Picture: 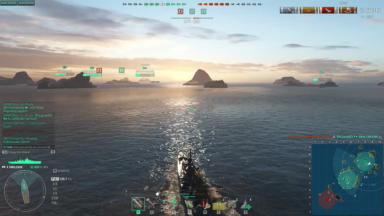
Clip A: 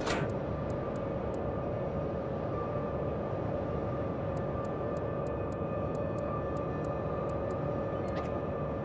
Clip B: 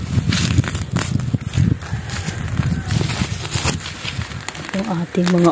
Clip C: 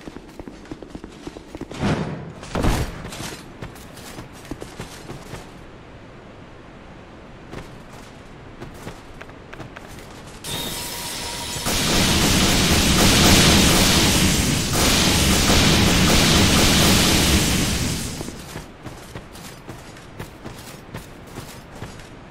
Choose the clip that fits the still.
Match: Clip A